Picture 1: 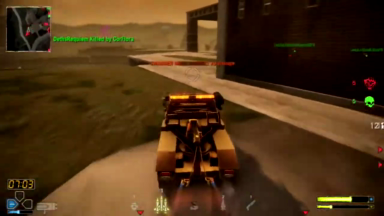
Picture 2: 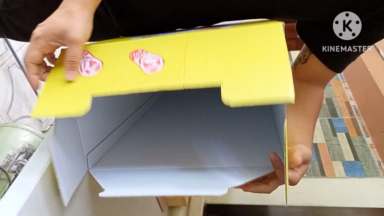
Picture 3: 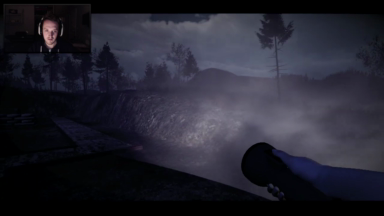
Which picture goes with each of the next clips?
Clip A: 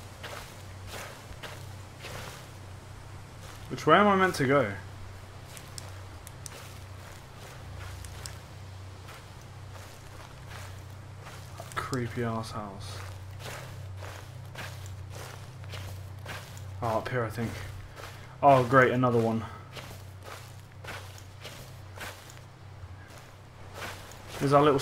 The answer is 3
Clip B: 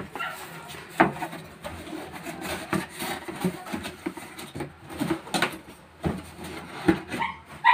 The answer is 2